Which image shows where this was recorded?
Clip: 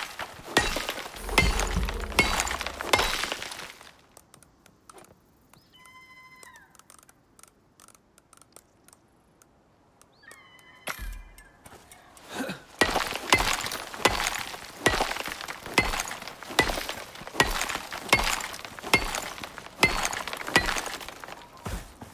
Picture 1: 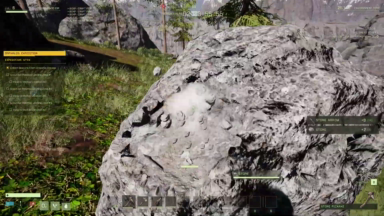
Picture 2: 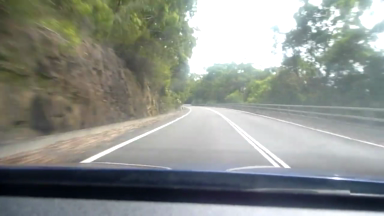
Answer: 1